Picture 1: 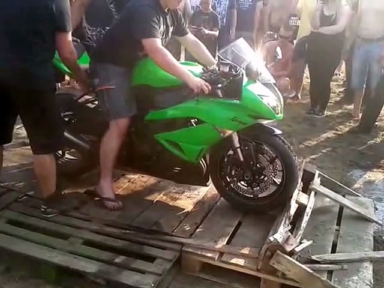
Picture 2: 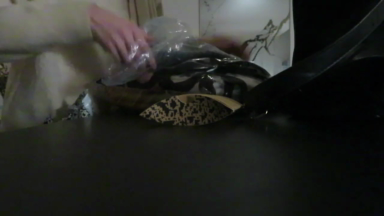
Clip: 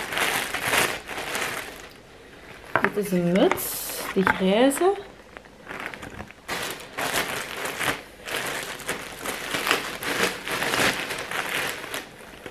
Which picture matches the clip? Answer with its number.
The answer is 2